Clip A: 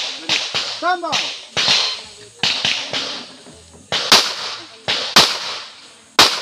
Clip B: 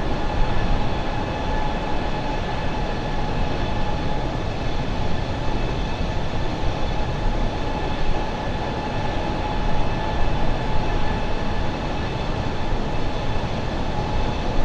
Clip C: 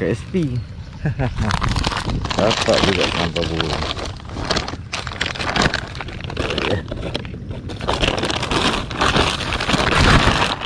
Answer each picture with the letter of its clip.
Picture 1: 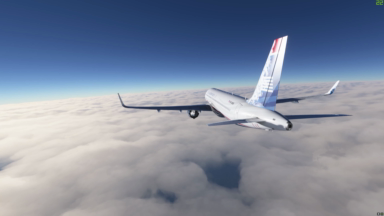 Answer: B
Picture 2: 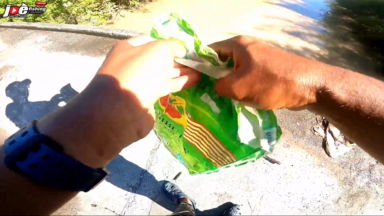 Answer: C